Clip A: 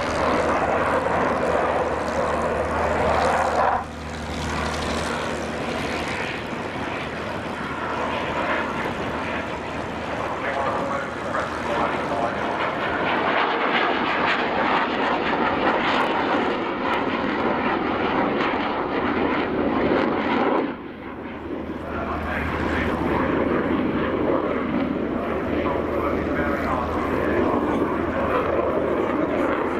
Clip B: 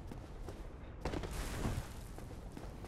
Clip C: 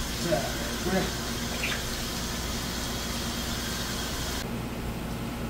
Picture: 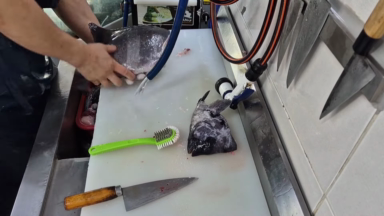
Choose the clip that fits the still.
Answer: C